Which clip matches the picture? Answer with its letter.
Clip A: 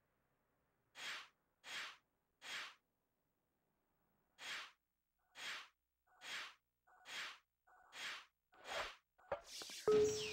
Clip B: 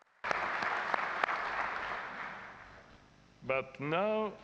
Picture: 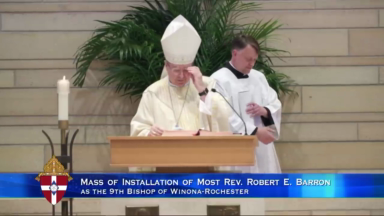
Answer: B